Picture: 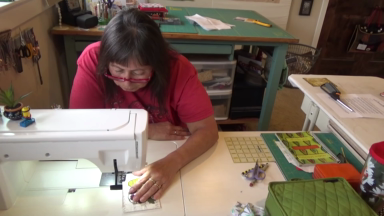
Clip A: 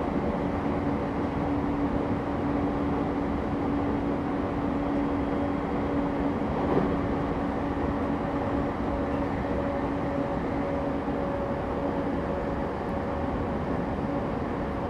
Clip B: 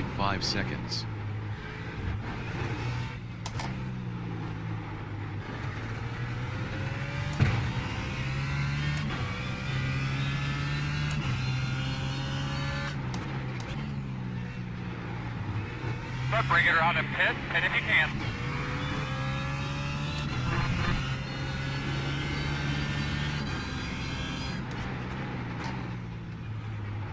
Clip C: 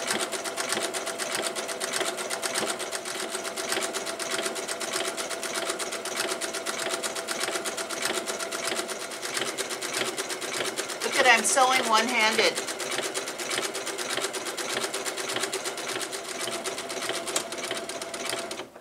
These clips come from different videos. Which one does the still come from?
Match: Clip C